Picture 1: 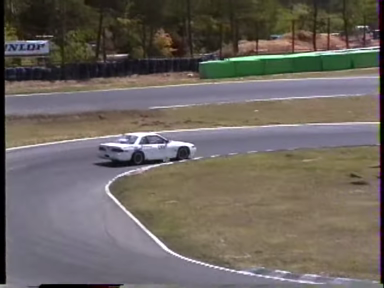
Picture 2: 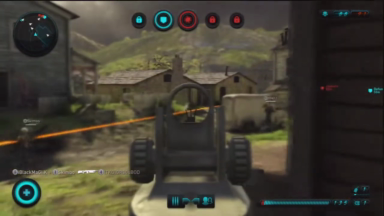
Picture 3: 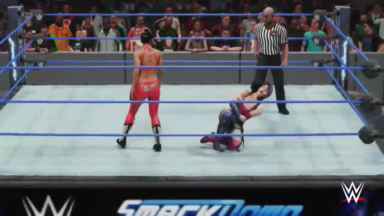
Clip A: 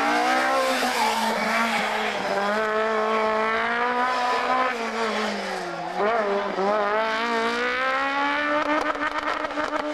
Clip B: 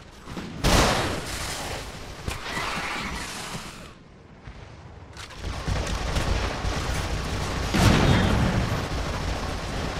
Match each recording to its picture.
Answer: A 1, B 2